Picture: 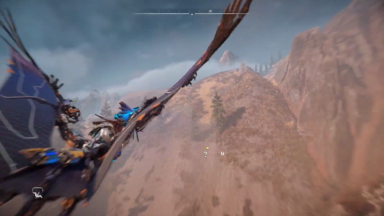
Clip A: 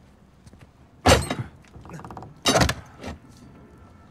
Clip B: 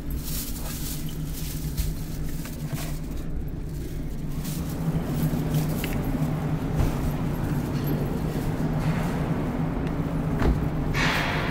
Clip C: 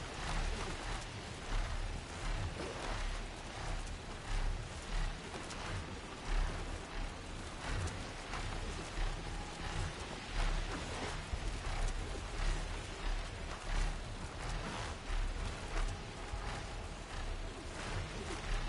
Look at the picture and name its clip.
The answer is C